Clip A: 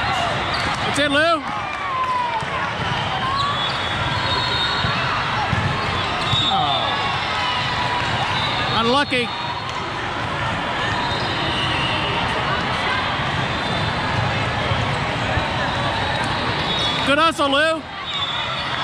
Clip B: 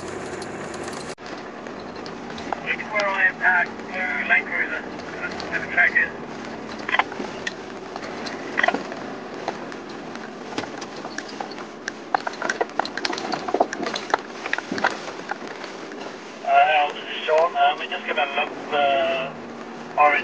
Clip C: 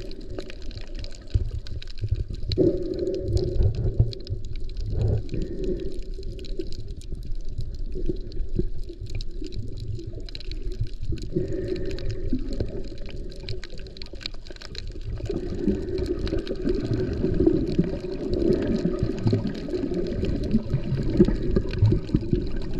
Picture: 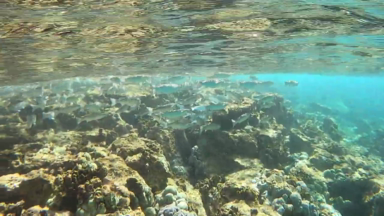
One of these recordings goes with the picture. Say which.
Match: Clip C